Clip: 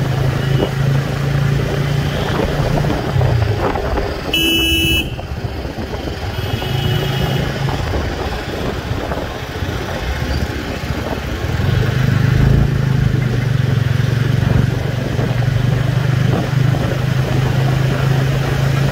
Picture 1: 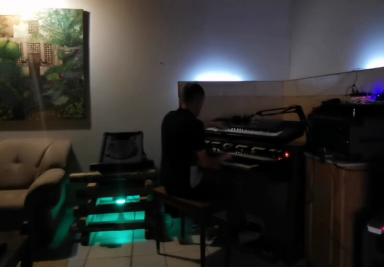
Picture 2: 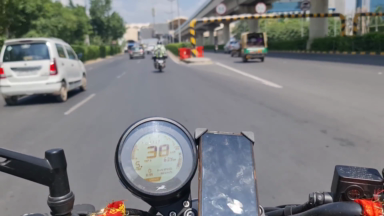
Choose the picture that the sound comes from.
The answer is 2